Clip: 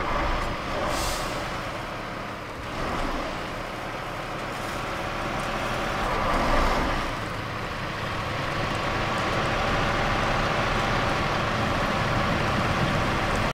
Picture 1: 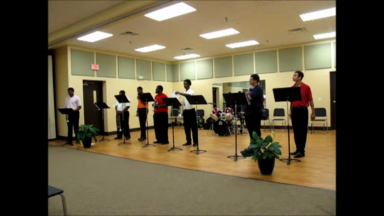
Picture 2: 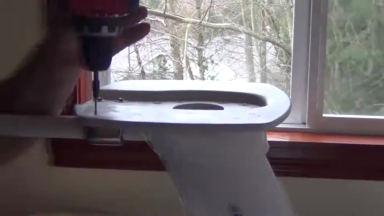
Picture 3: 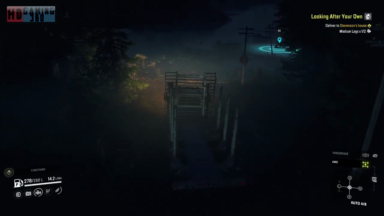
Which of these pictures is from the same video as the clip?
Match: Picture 3